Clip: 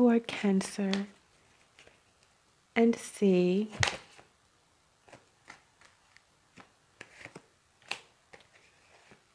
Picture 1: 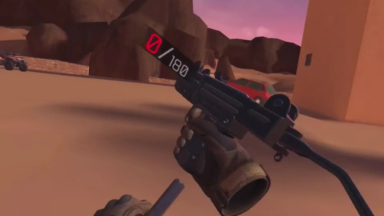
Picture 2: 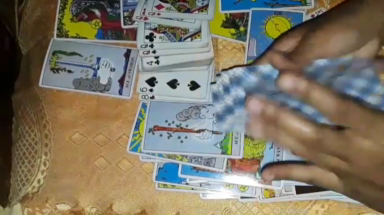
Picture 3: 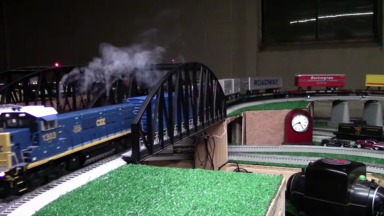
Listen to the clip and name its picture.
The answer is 2